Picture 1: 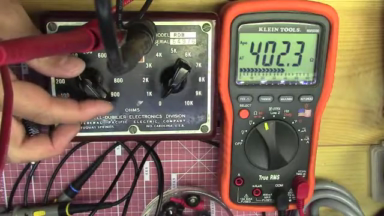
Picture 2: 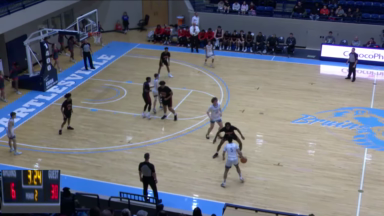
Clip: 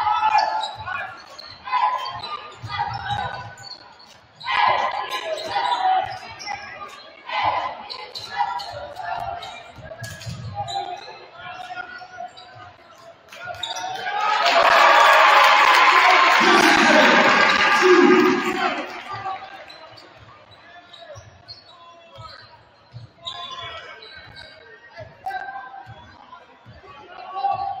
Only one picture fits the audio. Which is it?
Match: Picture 2